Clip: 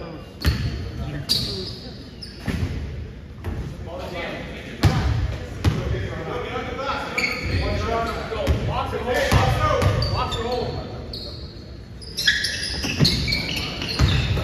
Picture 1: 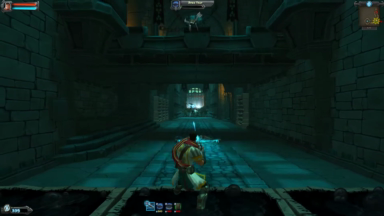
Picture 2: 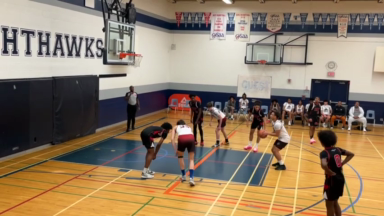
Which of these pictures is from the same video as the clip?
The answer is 2